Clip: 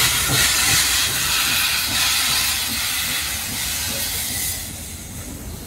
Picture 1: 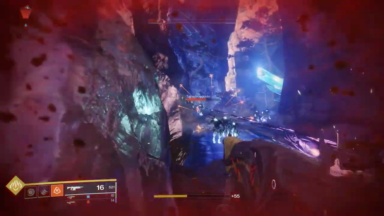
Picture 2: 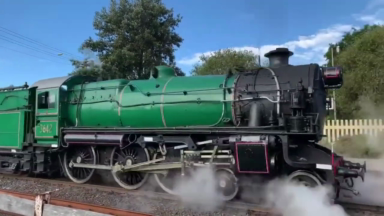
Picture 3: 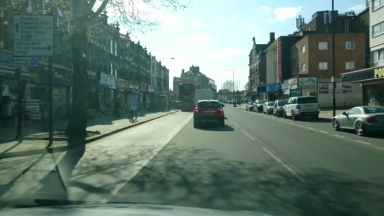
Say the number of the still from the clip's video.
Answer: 2